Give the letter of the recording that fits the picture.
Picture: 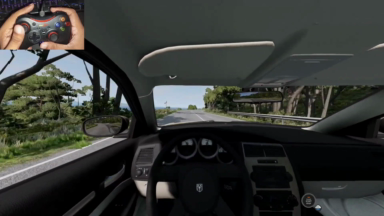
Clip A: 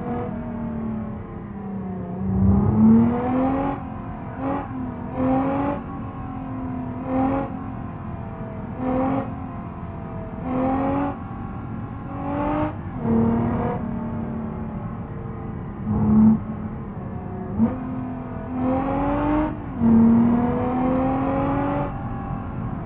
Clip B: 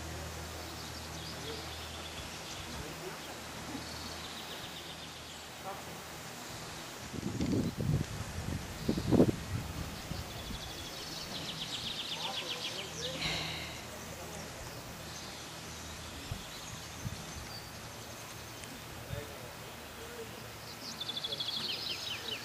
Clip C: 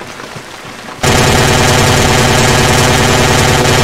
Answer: A